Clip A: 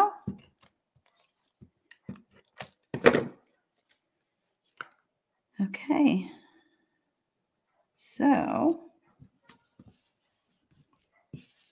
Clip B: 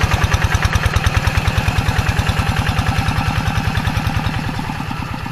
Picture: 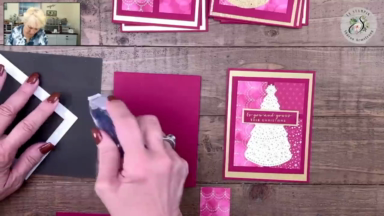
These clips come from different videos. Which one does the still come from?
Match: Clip A